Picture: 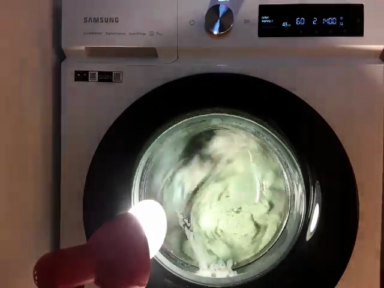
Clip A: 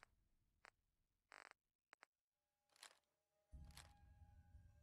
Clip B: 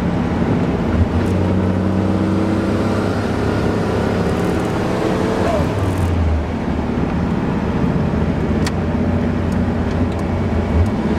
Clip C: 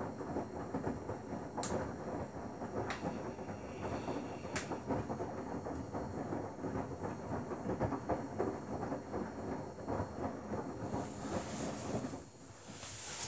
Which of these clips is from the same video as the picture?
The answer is C